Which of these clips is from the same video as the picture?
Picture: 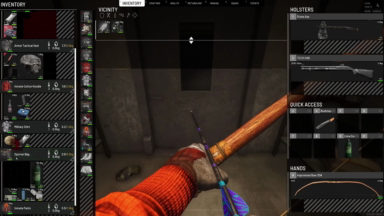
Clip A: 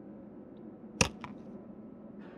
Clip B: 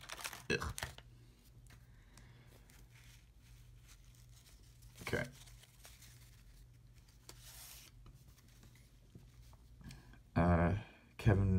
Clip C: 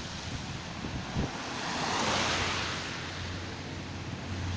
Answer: A